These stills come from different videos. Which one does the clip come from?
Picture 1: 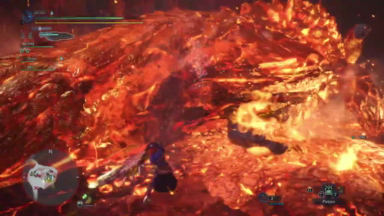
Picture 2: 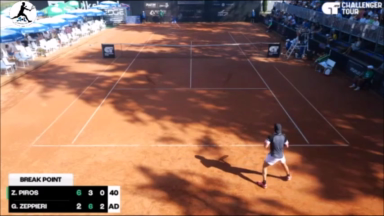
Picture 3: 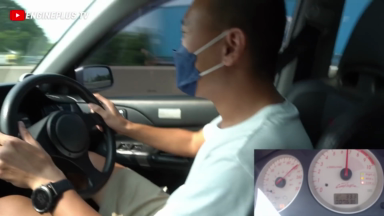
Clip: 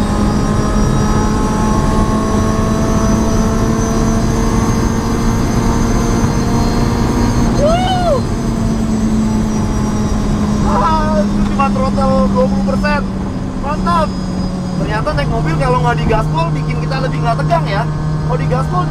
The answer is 3